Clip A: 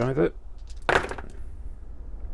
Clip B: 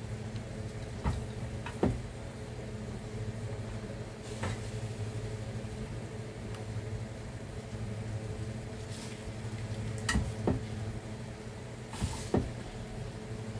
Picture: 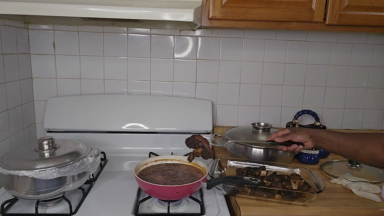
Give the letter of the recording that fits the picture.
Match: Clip B